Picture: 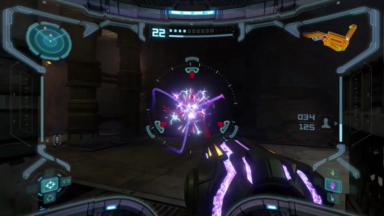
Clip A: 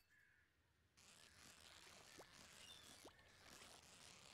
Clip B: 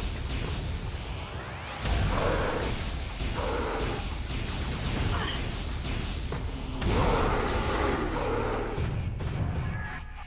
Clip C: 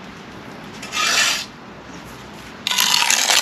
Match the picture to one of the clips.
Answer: B